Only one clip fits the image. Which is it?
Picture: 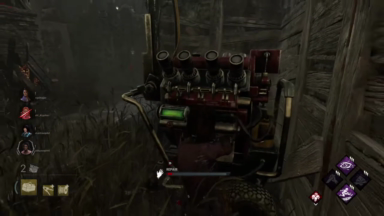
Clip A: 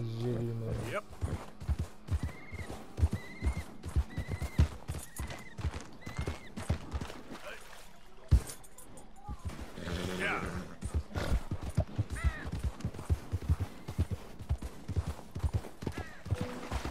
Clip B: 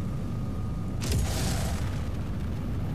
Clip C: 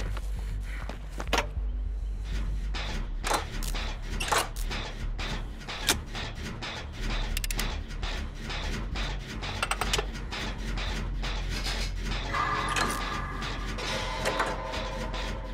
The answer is C